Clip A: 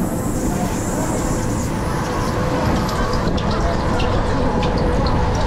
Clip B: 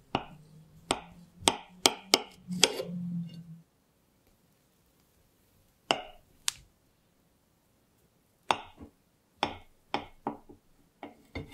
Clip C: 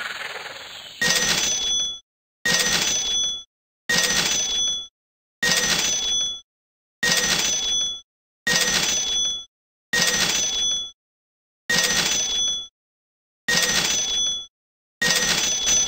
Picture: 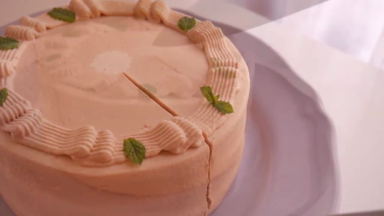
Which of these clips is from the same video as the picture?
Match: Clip B